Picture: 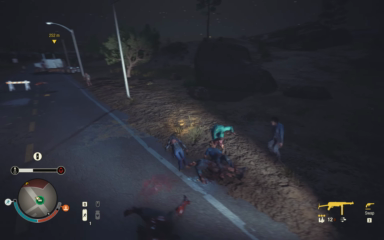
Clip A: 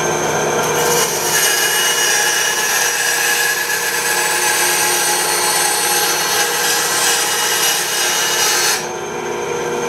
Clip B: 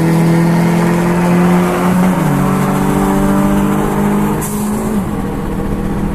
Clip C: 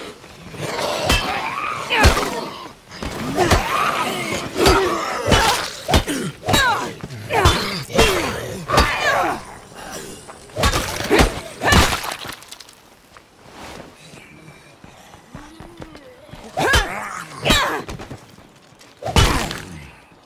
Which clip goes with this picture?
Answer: C